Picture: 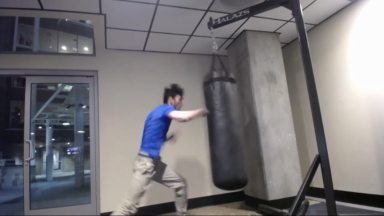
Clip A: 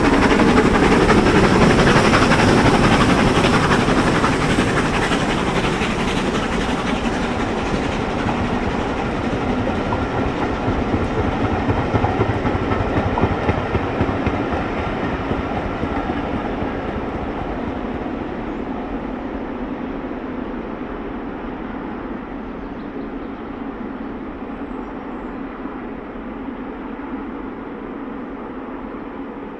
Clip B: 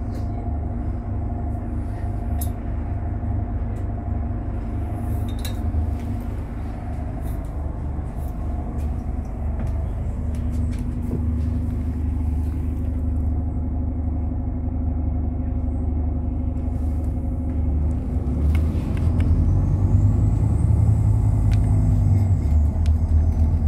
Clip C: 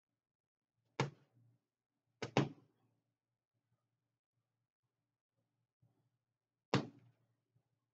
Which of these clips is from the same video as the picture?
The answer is C